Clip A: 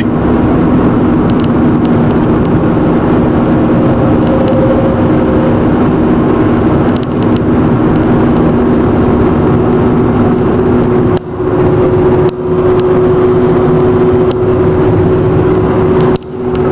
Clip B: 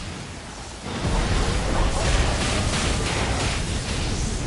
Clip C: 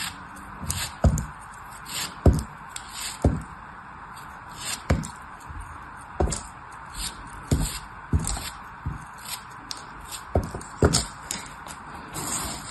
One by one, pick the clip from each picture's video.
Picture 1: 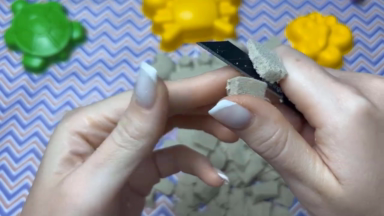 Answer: C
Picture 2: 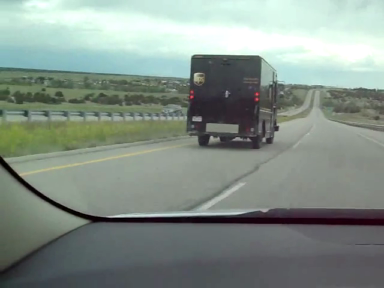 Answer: A